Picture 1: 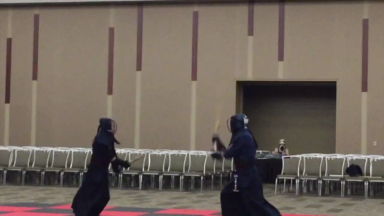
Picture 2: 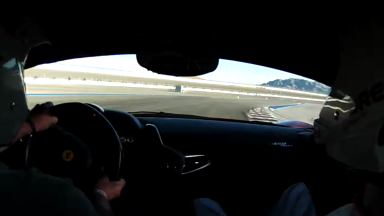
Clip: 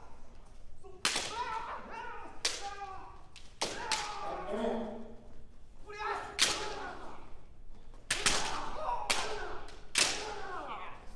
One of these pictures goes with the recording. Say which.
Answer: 1